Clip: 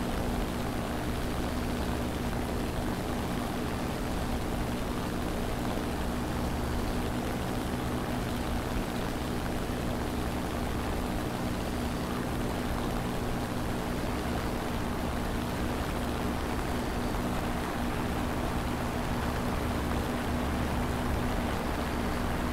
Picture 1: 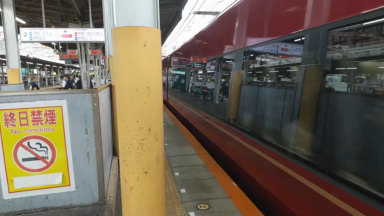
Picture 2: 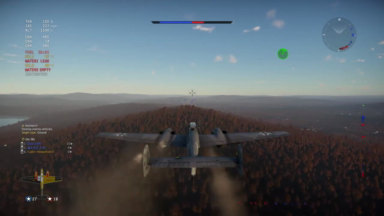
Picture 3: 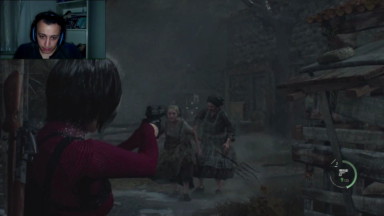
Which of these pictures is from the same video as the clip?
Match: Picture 2